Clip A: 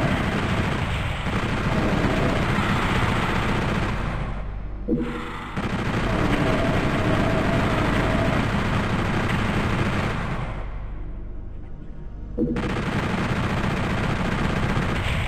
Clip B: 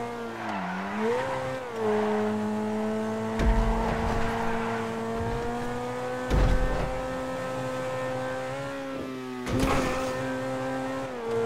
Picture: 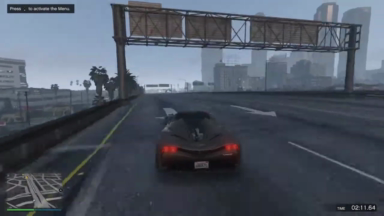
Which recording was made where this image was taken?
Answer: B